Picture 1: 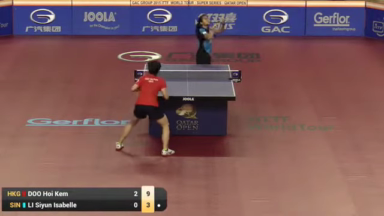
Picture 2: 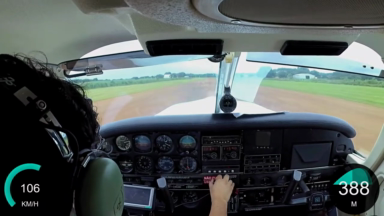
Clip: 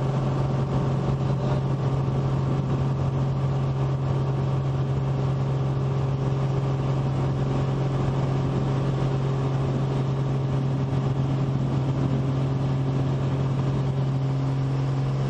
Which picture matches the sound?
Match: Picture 2